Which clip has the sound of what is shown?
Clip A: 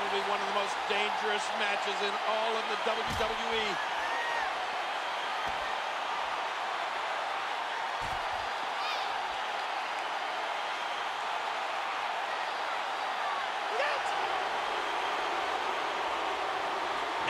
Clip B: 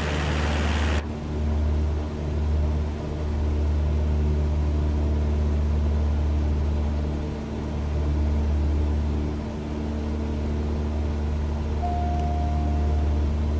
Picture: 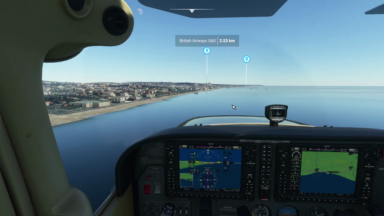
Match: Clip B